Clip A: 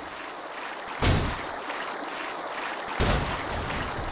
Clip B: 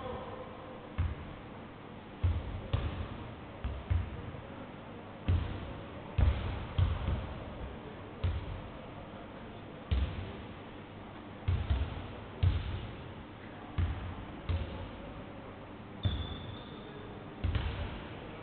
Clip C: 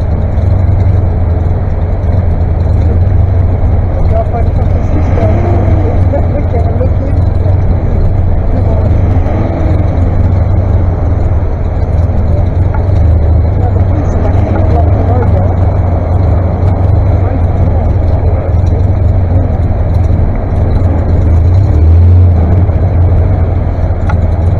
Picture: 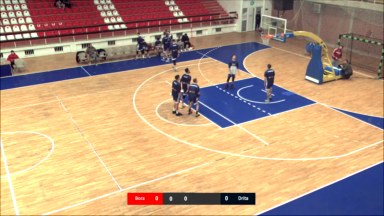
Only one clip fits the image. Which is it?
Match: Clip B